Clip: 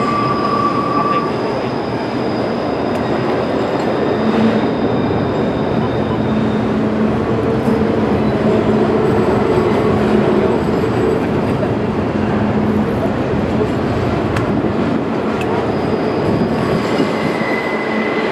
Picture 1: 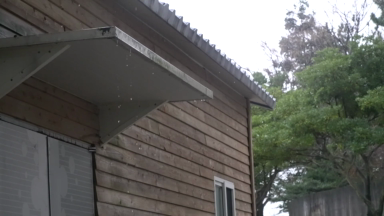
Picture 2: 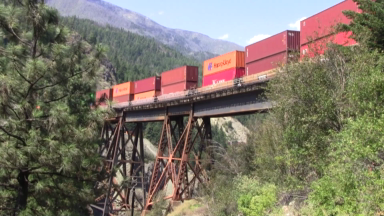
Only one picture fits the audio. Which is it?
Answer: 2